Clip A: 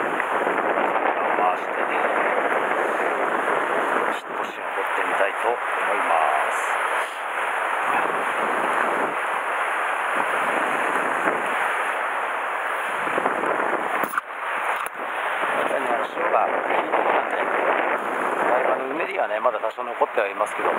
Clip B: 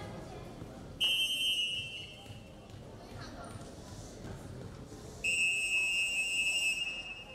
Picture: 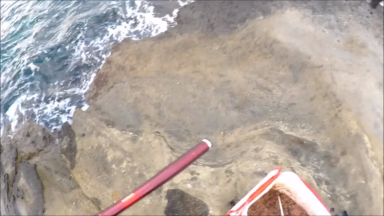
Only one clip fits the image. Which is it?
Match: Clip A